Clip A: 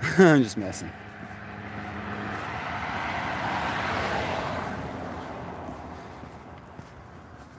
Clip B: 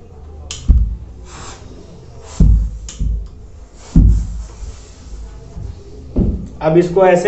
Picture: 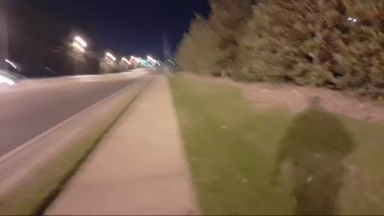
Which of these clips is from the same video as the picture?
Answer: A